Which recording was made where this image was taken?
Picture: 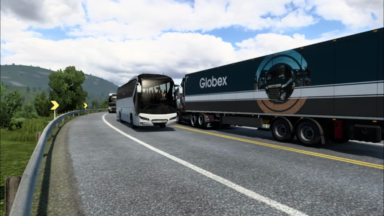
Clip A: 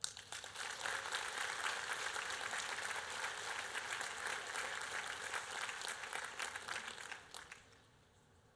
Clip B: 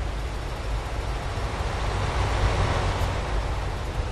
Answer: B